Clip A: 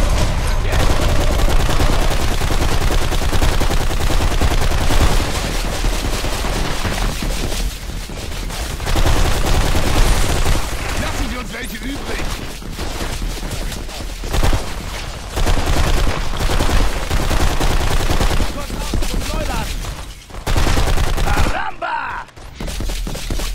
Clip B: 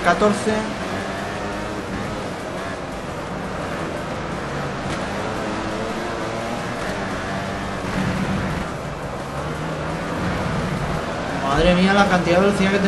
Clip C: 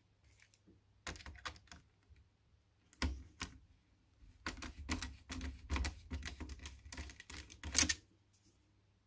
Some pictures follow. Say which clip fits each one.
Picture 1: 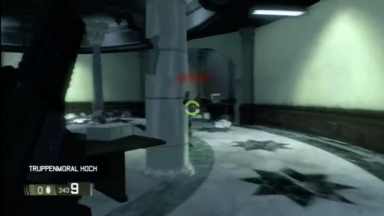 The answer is A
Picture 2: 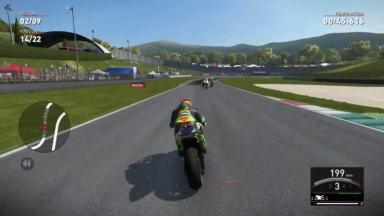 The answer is B